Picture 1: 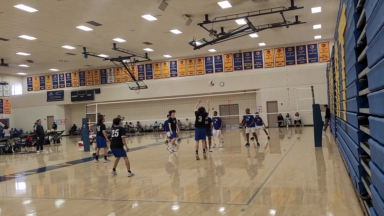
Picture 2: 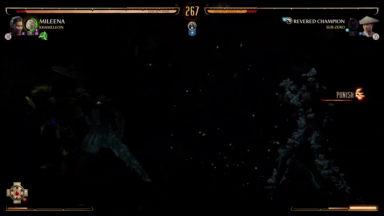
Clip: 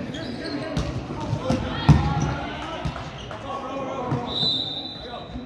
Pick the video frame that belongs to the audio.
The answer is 1